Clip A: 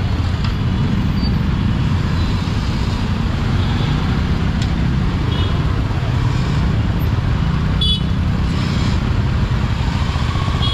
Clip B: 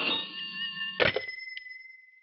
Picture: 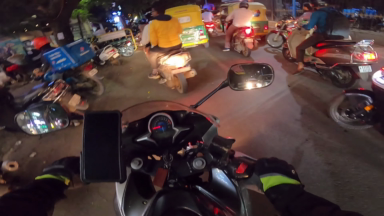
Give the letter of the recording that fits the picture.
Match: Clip A